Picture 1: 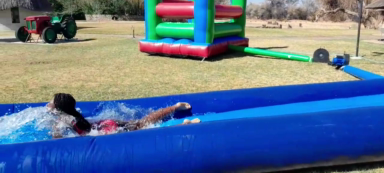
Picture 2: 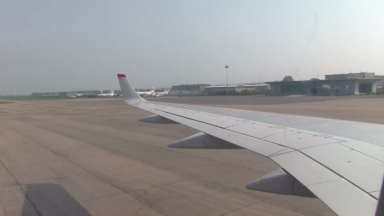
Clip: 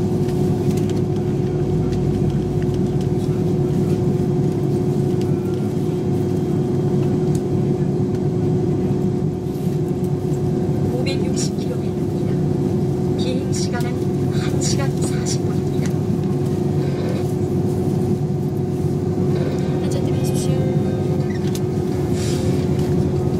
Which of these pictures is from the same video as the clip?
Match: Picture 2